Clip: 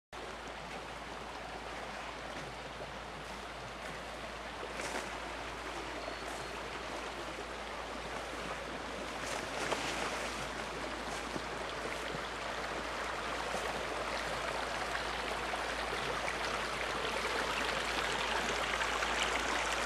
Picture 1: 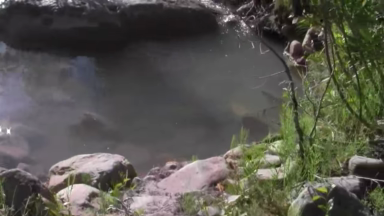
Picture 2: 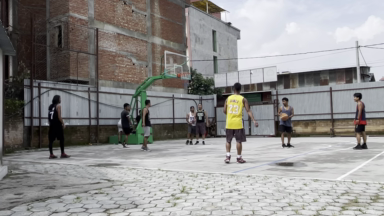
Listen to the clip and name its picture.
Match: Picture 1